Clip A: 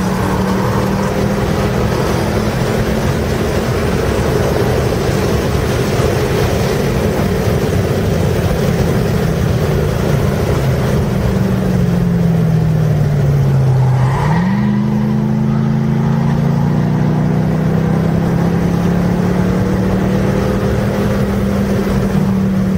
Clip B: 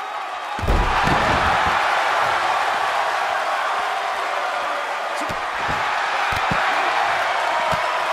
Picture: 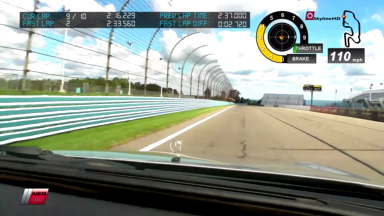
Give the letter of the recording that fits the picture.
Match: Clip A